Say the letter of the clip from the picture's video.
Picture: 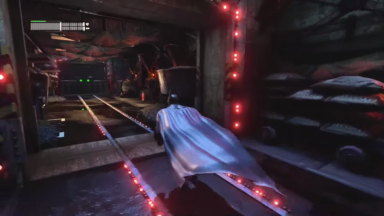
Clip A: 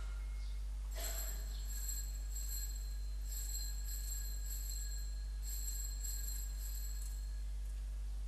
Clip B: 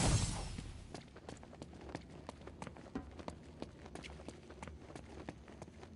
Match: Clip B